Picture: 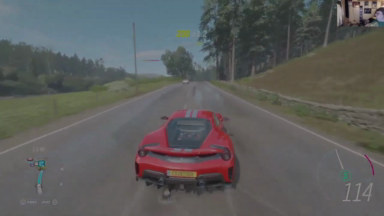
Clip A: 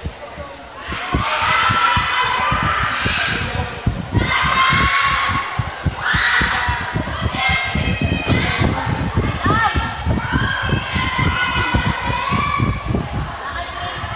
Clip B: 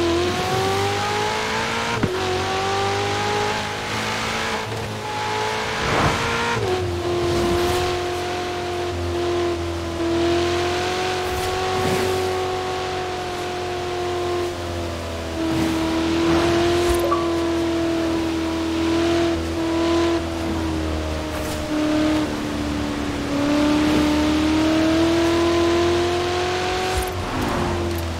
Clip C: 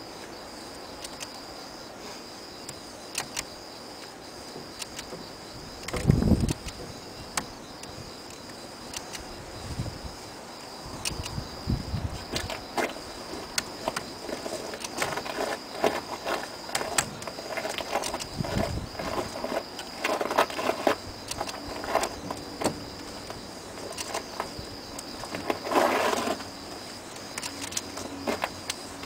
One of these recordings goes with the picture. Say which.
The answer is B